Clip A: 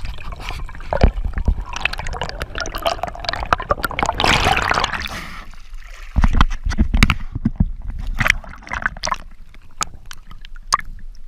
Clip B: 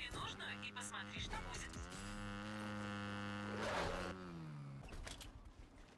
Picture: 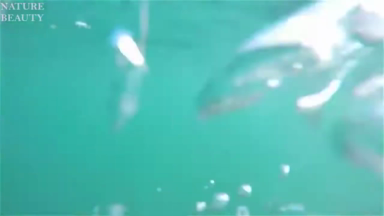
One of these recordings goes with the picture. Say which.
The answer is A